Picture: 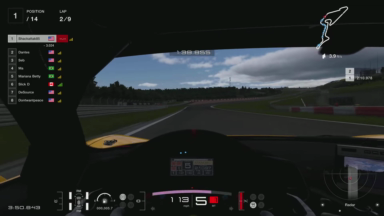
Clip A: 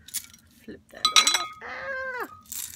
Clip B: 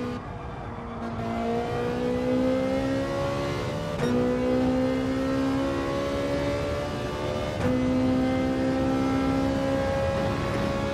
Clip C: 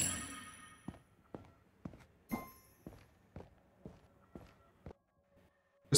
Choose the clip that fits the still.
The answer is B